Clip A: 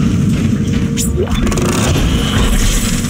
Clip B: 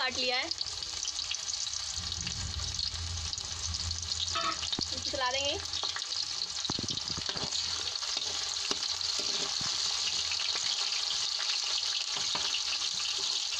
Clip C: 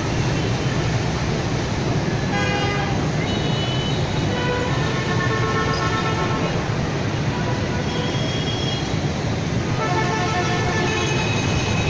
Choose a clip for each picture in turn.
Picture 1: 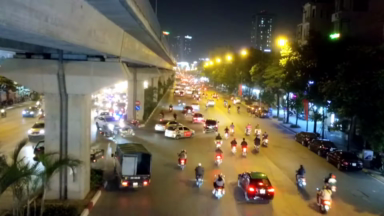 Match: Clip C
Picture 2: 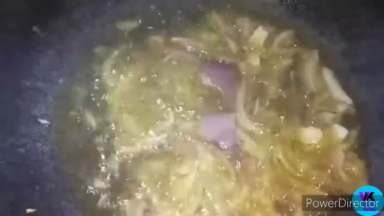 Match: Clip B